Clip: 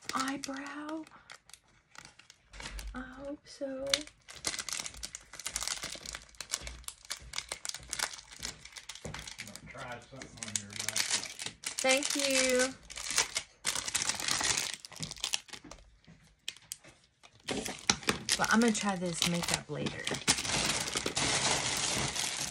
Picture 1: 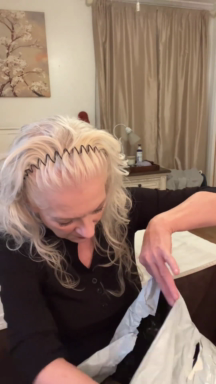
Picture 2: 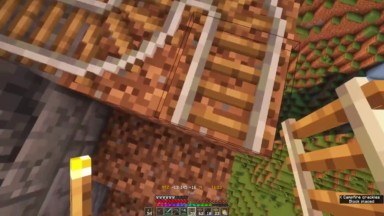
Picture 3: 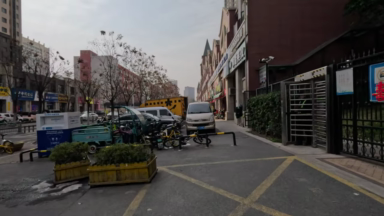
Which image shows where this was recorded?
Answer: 1